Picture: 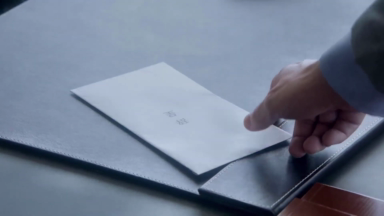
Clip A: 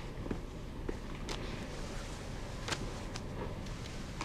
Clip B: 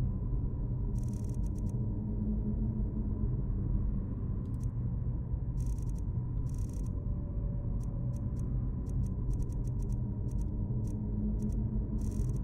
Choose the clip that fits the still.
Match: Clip A